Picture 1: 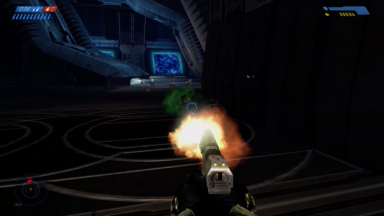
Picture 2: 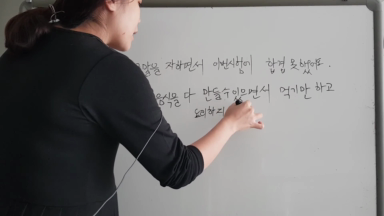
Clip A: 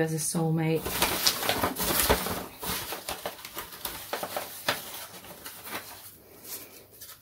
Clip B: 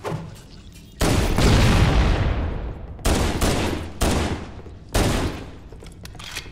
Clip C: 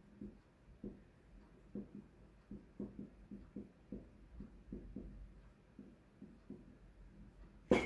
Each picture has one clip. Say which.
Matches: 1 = B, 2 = C